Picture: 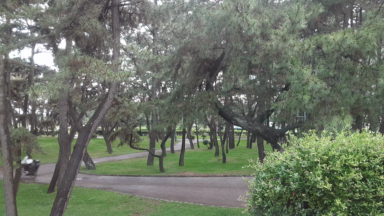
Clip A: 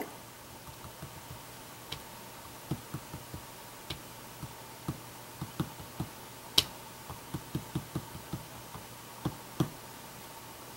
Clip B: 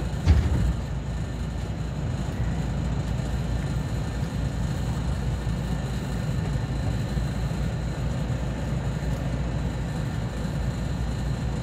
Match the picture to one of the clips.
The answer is B